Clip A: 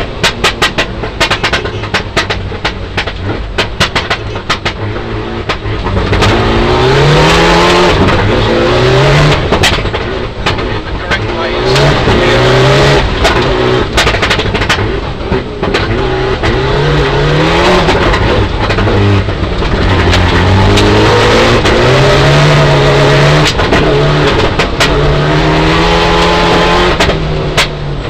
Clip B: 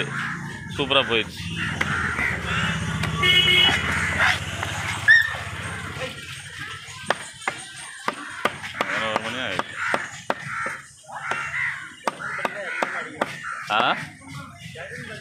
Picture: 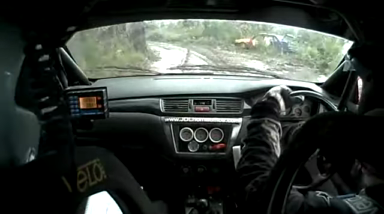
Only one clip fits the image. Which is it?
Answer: A